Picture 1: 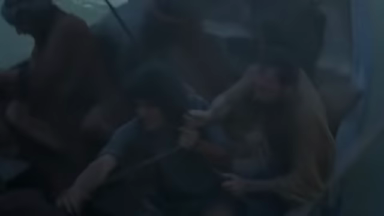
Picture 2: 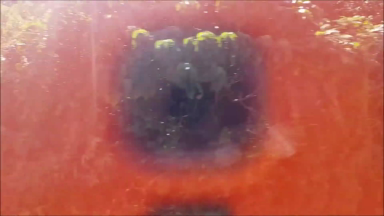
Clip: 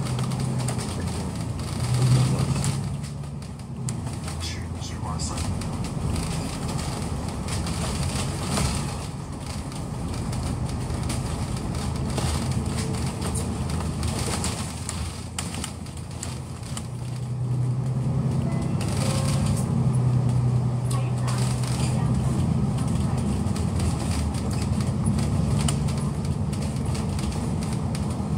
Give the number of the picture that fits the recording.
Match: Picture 2